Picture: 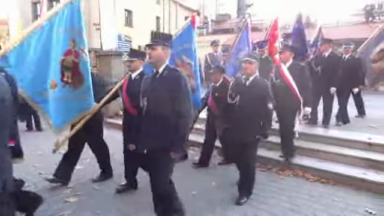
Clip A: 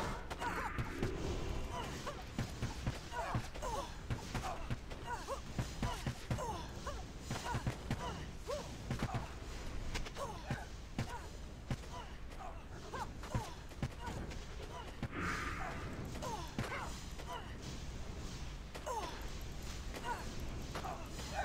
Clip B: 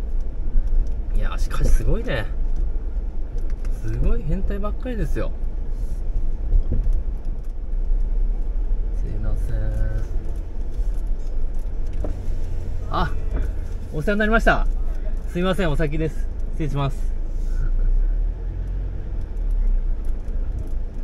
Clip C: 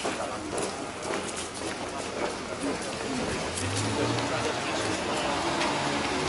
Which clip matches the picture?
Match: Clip C